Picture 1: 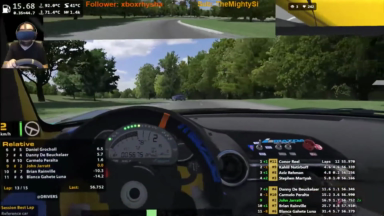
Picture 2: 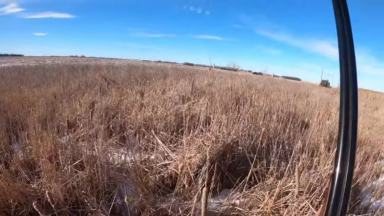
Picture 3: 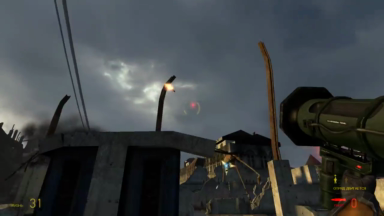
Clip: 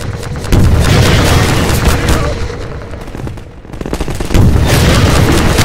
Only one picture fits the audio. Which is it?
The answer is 3